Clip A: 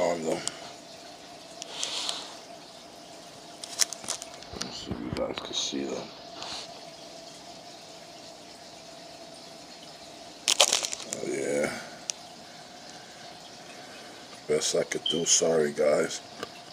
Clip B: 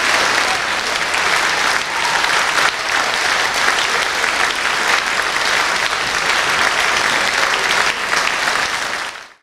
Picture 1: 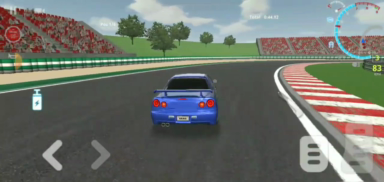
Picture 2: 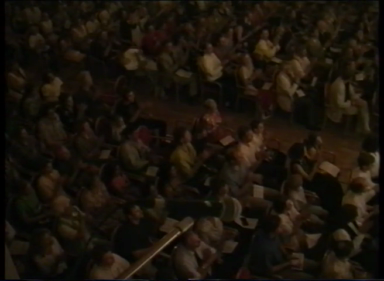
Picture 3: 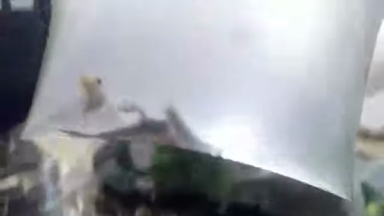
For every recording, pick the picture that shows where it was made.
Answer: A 3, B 2